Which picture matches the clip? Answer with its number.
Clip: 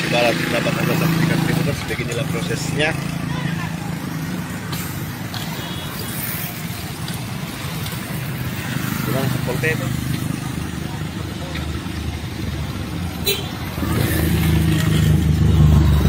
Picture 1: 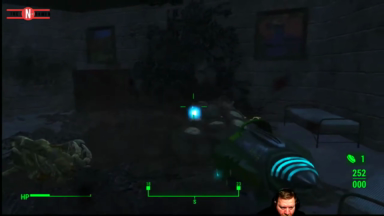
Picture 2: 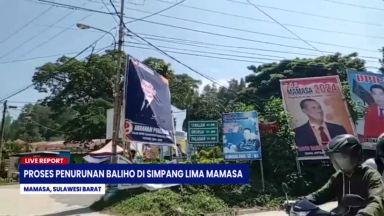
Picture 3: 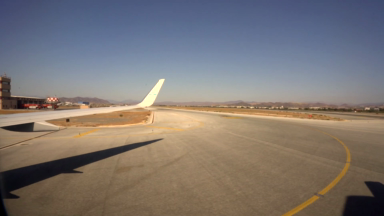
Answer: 2